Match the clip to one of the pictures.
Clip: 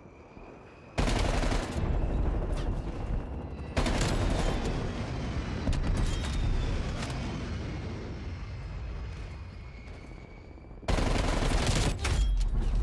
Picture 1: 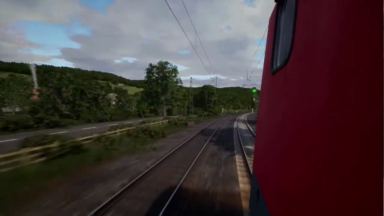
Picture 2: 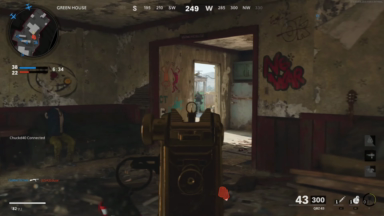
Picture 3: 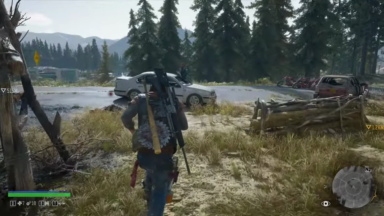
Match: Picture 2